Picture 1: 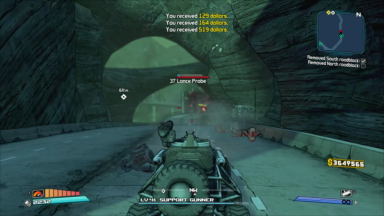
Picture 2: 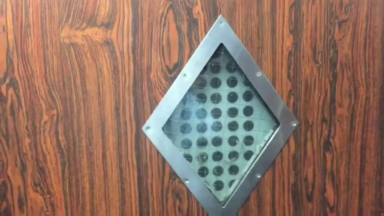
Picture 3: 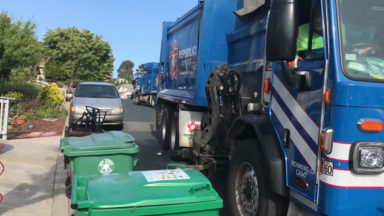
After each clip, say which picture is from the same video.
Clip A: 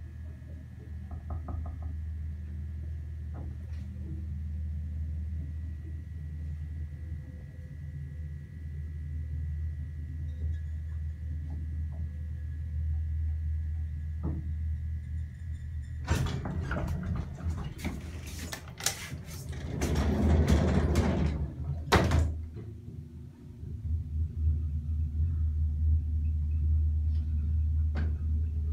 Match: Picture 2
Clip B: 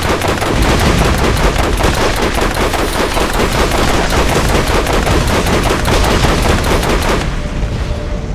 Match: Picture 1